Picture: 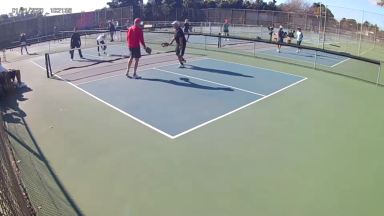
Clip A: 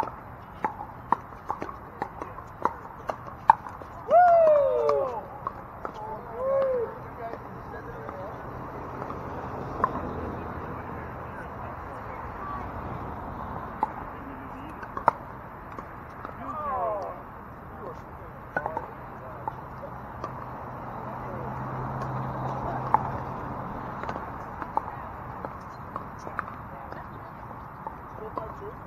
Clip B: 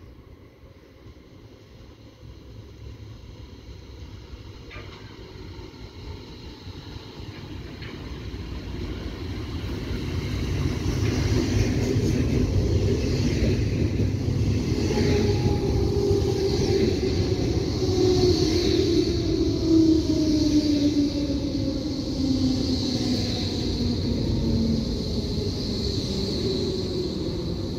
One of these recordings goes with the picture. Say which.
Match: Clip A